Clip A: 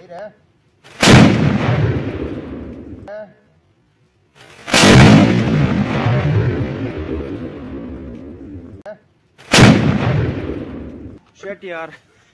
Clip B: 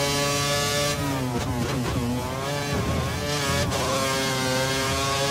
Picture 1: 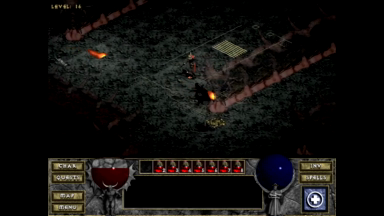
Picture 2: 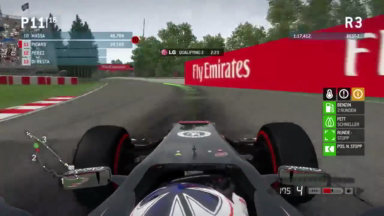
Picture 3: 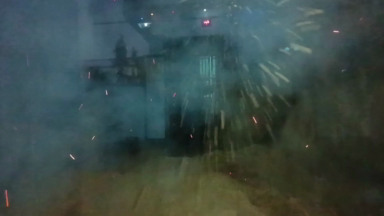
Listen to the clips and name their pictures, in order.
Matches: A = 3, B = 2